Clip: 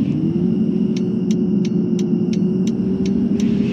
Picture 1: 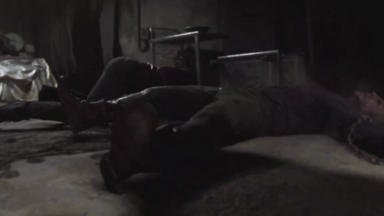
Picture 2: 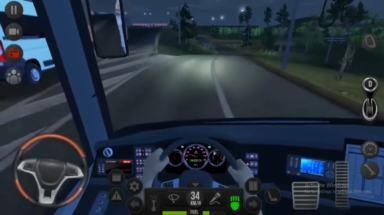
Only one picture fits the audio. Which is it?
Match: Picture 2